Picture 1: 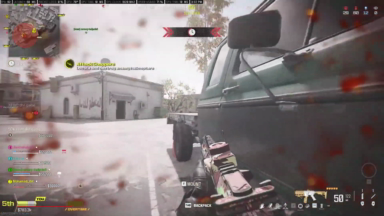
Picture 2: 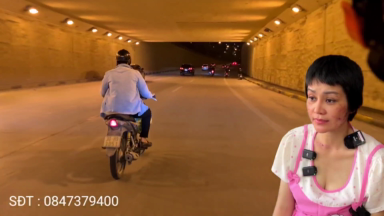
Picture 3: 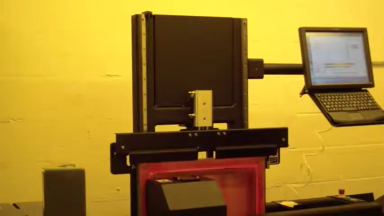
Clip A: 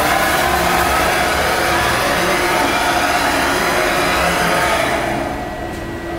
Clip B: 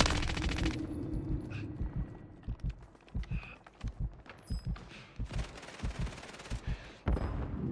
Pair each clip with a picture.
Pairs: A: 3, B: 1